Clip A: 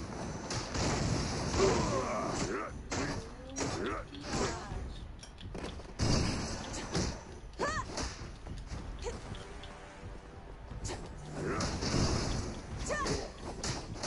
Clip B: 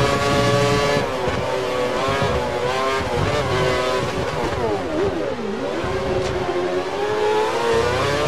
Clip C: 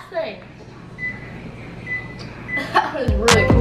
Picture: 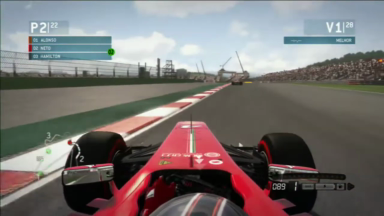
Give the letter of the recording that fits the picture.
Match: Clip B